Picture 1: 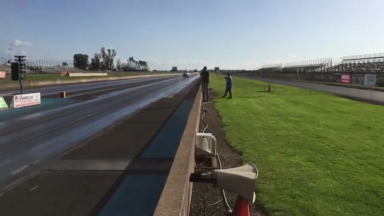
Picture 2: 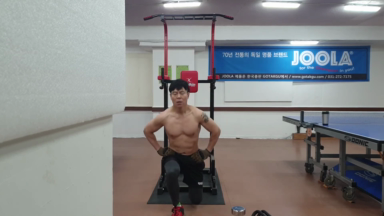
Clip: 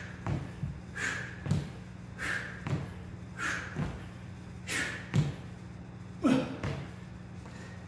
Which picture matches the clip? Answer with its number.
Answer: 2